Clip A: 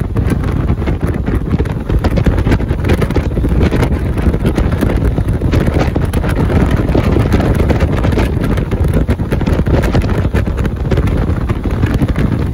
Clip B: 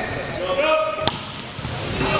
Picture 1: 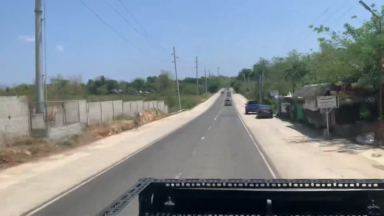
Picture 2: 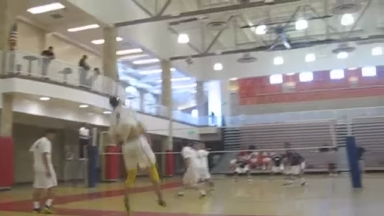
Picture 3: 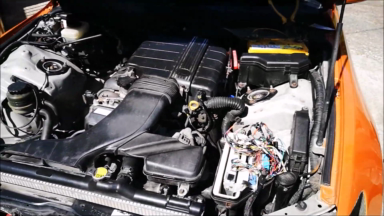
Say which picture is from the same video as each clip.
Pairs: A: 1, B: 2